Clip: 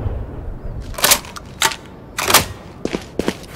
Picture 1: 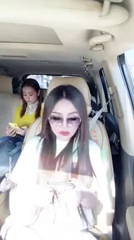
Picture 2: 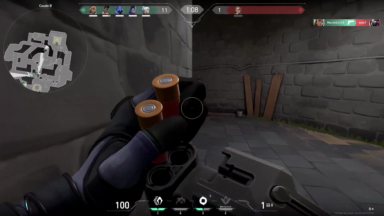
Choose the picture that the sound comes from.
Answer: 2